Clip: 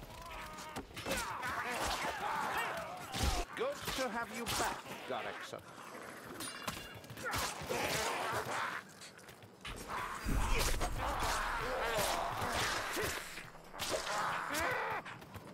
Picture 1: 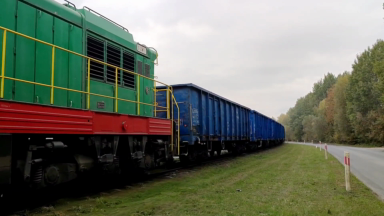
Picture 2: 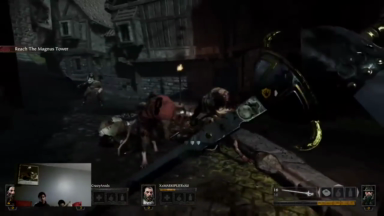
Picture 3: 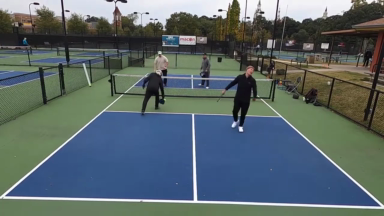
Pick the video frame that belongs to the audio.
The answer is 2